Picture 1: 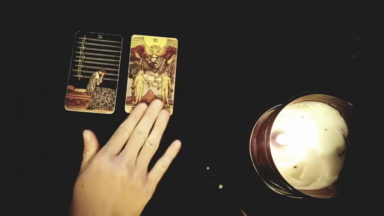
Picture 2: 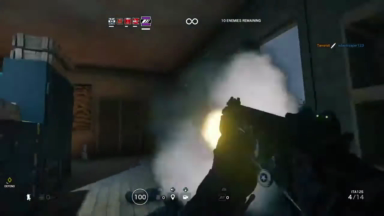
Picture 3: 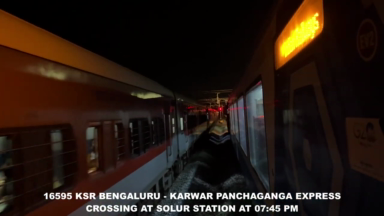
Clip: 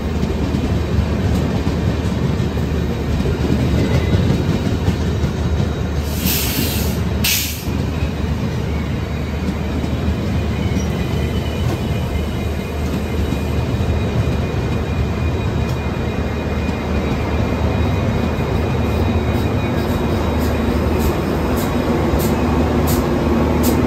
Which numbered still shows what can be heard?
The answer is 3